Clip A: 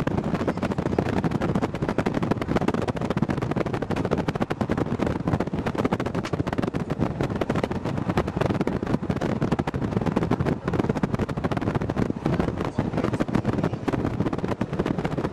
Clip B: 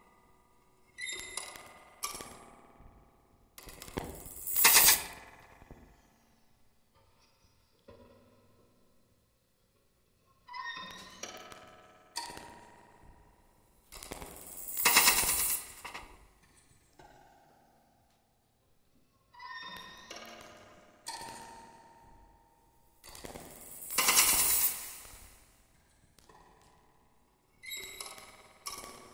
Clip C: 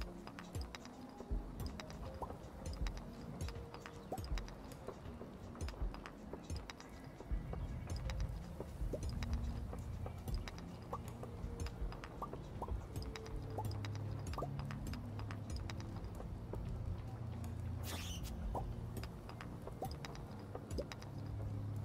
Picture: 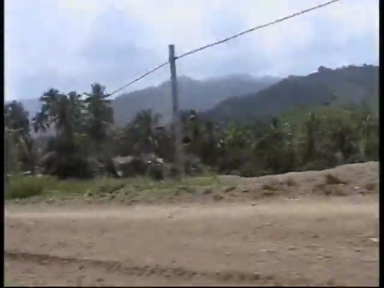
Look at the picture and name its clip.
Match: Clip A